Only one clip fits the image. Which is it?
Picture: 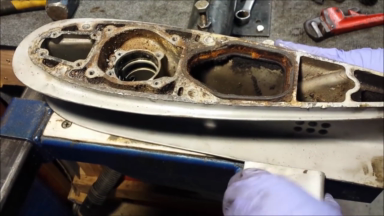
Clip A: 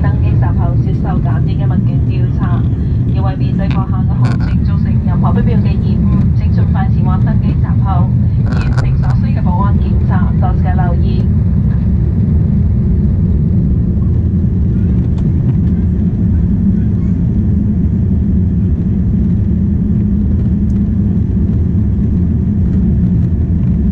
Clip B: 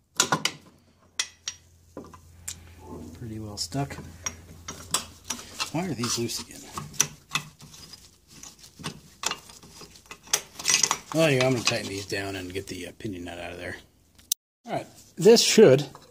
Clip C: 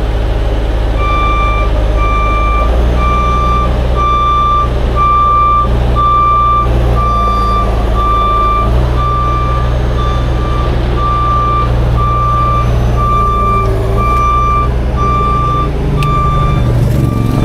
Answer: B